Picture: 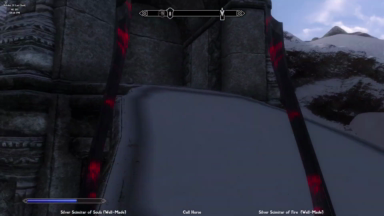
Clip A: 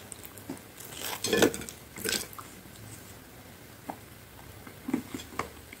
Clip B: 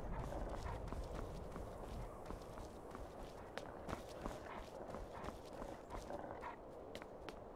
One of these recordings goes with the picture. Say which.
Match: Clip B